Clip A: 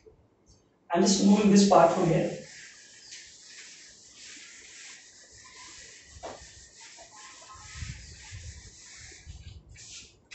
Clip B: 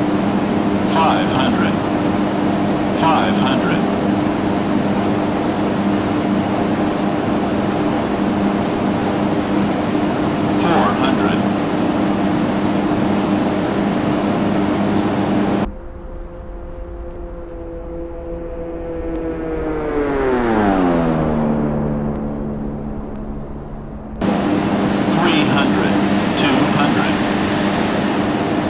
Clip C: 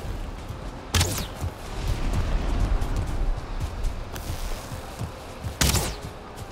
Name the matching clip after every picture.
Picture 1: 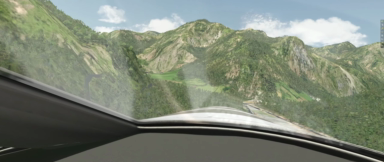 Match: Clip B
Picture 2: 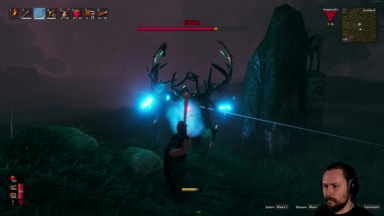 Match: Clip C